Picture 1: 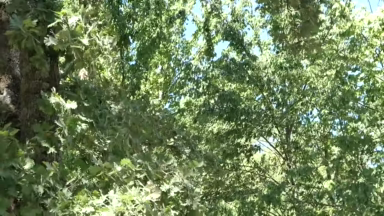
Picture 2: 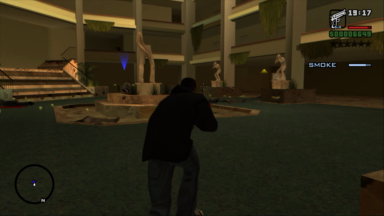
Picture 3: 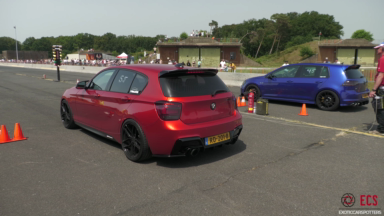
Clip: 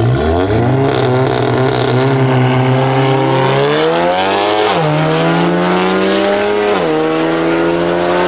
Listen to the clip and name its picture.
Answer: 3